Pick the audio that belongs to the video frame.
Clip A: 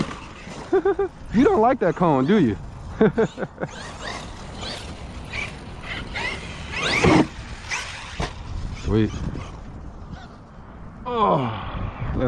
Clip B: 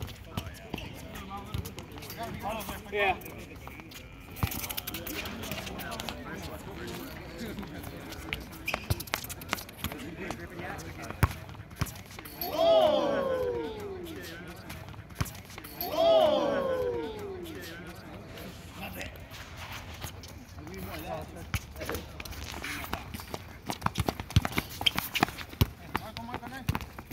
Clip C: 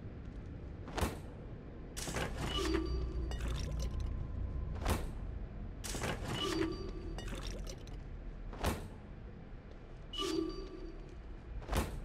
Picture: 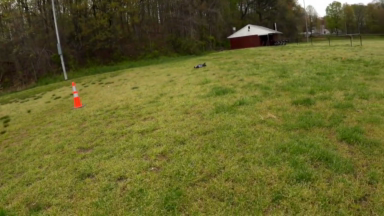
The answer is A